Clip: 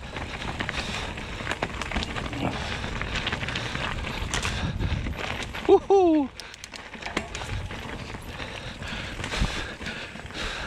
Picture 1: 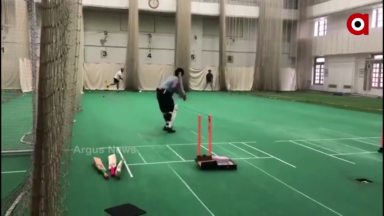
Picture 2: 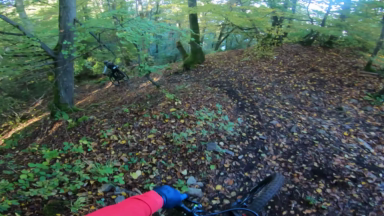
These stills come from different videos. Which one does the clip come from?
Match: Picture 2